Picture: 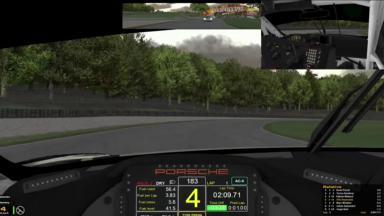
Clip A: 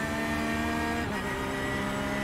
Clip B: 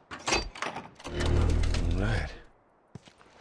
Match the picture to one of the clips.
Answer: A